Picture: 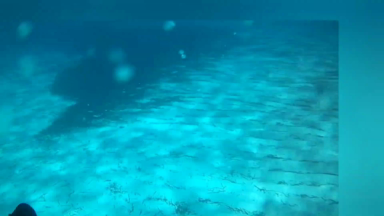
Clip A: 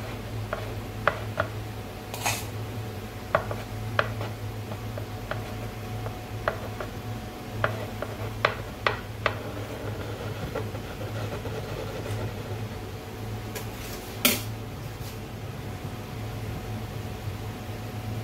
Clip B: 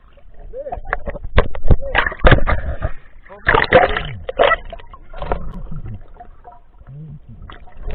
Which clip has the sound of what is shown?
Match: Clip B